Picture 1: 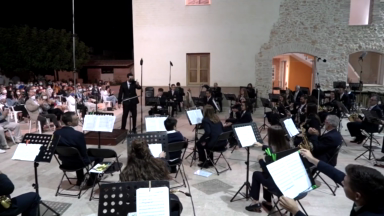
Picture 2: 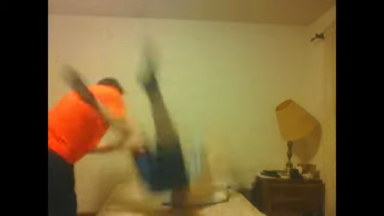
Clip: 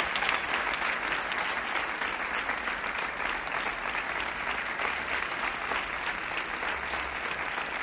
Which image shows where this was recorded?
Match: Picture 1